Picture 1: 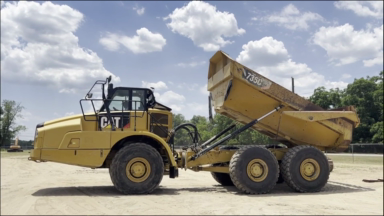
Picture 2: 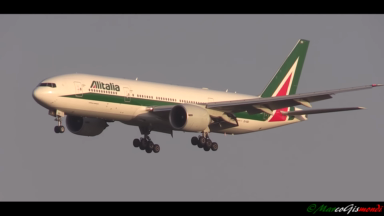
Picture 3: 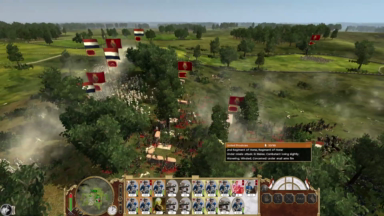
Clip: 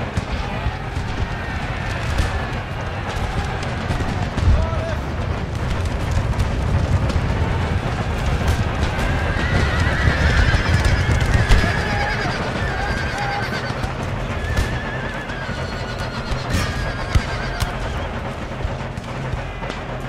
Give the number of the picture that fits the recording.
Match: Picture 3